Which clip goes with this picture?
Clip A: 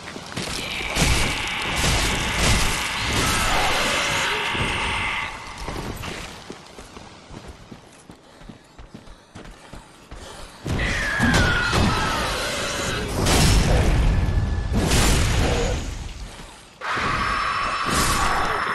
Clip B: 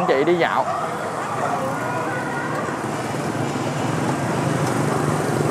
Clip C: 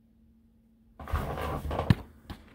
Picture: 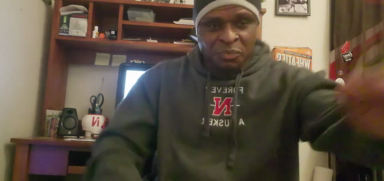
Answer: C